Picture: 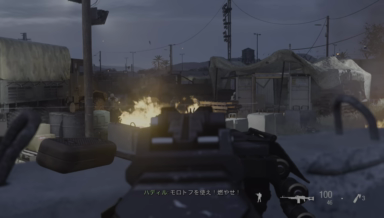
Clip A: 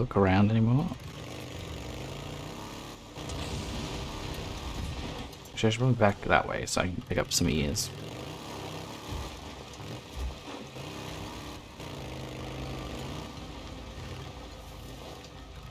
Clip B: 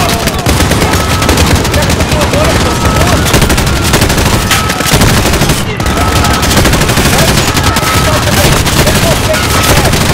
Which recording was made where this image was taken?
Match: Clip B